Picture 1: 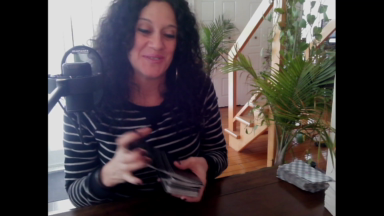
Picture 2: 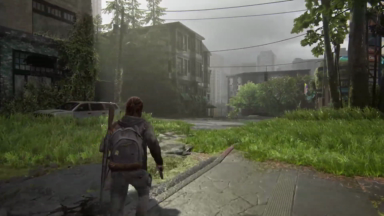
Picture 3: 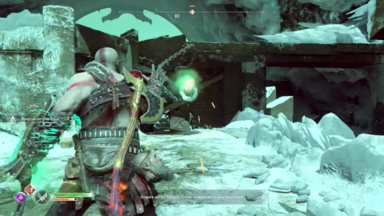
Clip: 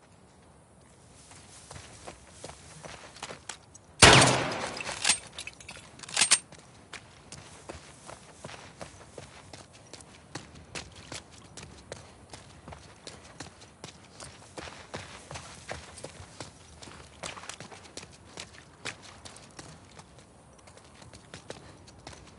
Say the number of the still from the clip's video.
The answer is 2